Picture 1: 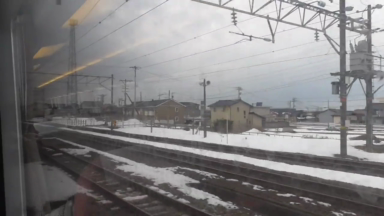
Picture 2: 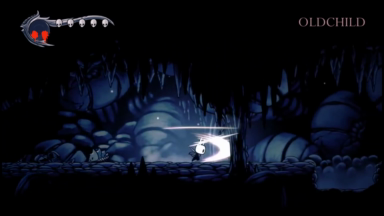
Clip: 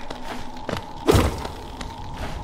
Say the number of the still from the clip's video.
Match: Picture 2